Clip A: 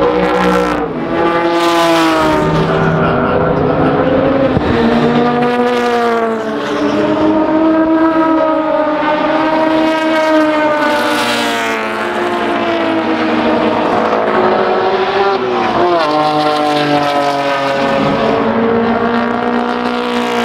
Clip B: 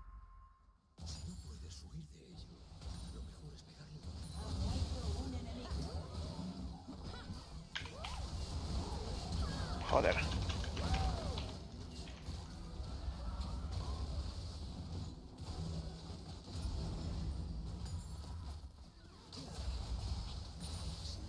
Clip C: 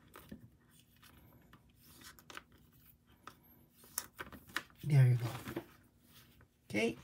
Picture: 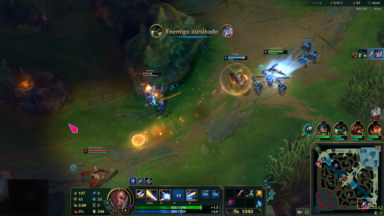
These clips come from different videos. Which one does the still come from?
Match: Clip B